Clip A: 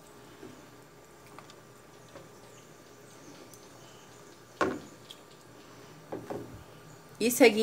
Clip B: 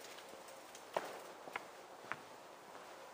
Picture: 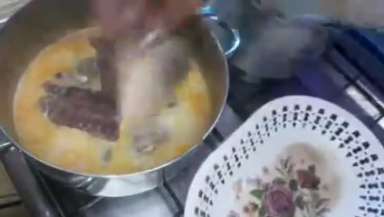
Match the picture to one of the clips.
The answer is A